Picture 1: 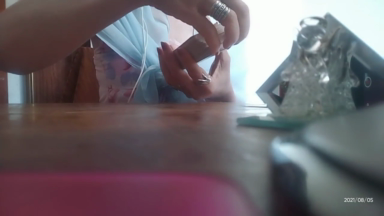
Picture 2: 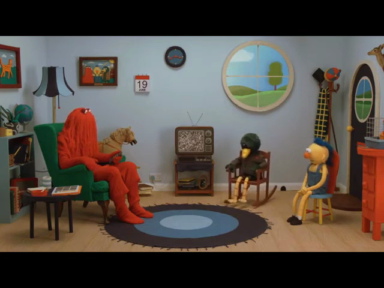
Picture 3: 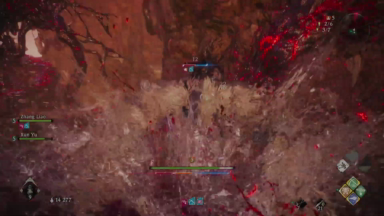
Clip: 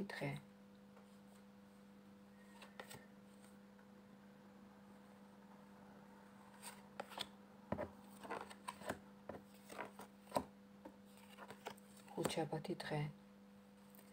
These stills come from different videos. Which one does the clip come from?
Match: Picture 1